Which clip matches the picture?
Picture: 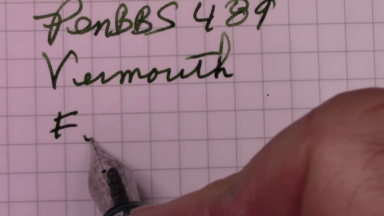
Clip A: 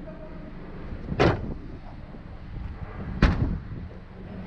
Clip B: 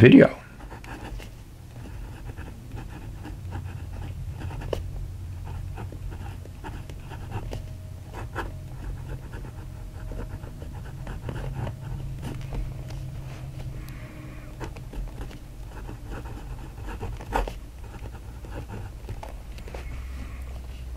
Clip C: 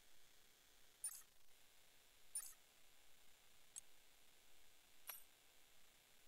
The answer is B